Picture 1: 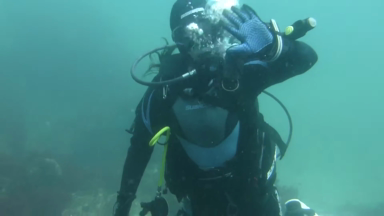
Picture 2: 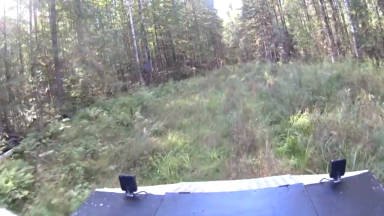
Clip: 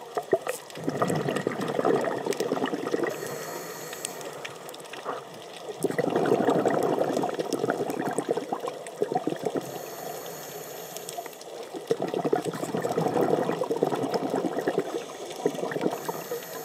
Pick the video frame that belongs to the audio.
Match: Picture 1